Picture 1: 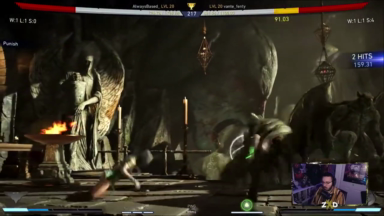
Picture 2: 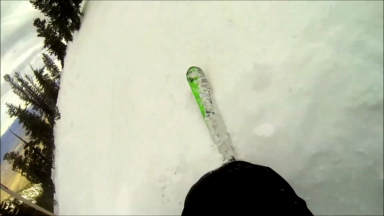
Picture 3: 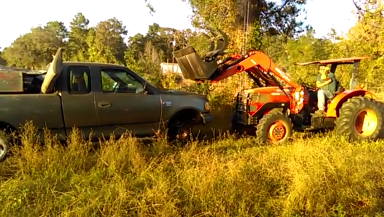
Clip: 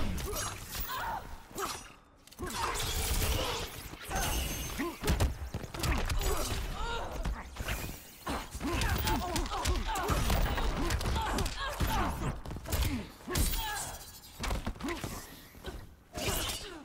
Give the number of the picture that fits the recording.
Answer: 1